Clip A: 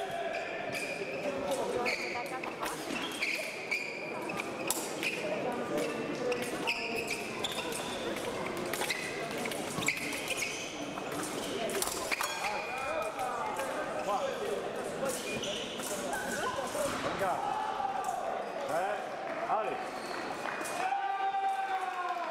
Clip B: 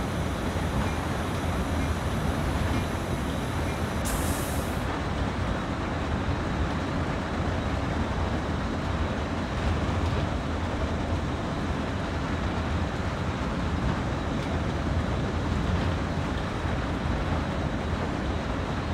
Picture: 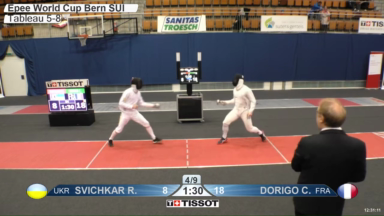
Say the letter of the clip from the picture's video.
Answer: A